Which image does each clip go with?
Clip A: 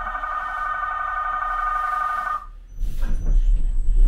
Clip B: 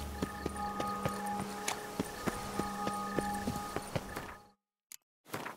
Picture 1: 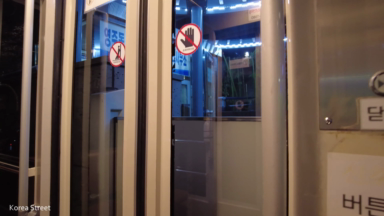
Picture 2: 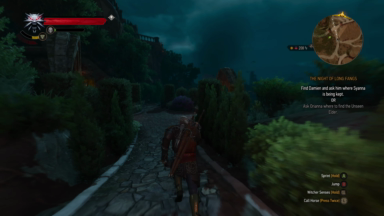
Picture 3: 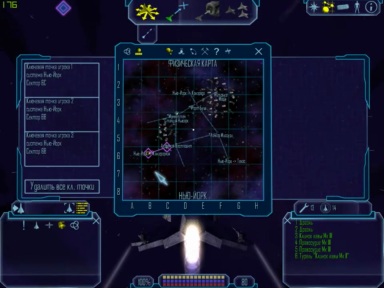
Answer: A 1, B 2